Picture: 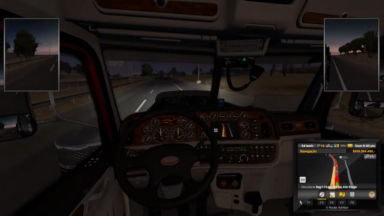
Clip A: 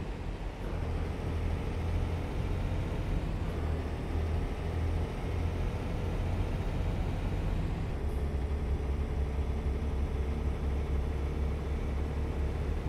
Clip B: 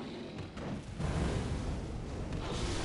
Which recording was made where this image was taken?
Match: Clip A